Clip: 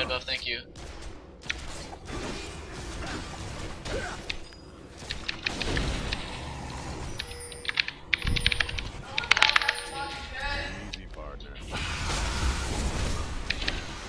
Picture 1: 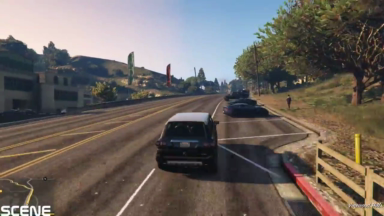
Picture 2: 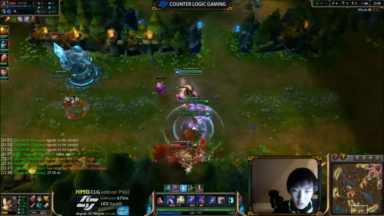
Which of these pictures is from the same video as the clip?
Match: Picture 2